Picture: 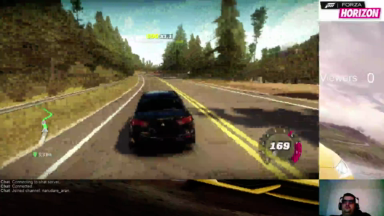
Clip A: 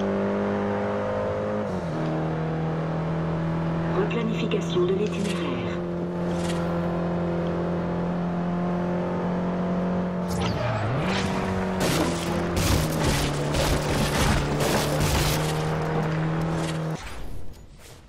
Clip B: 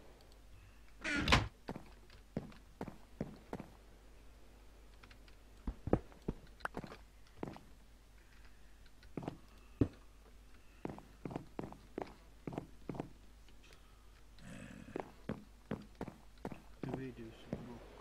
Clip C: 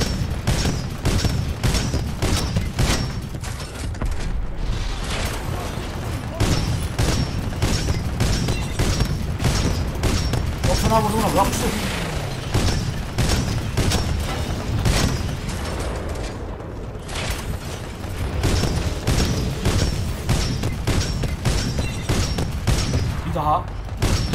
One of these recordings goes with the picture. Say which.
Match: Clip A